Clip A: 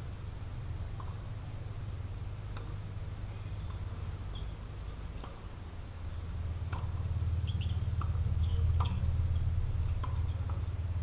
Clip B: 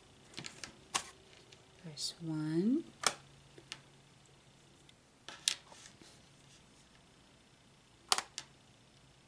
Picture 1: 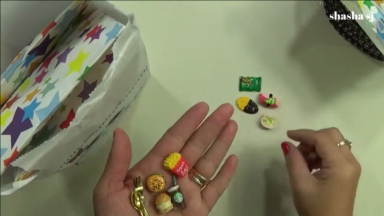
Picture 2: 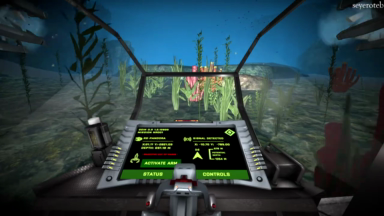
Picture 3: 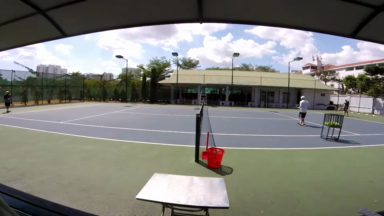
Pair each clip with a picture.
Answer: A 3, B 1